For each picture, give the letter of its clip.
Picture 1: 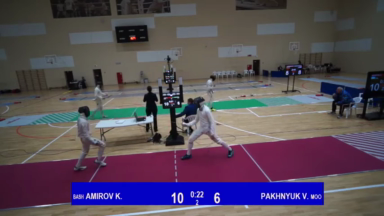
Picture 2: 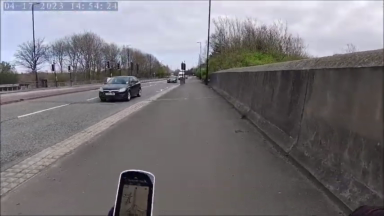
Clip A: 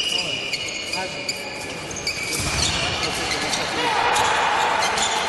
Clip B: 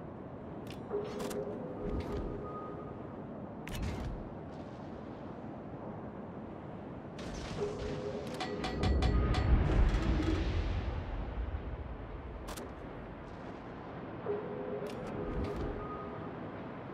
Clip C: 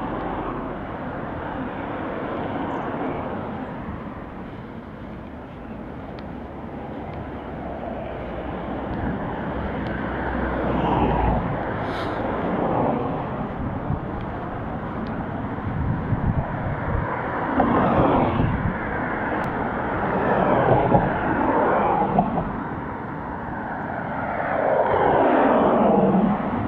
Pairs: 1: A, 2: C